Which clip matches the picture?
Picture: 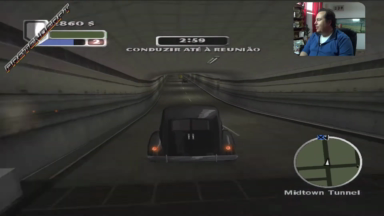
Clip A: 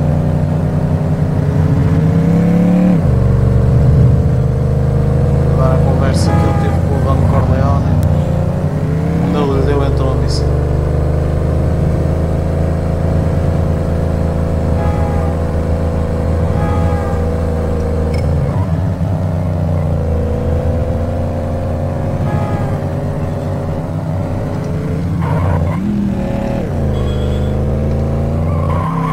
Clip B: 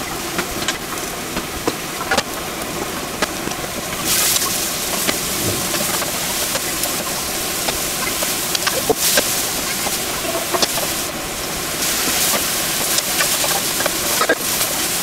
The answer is A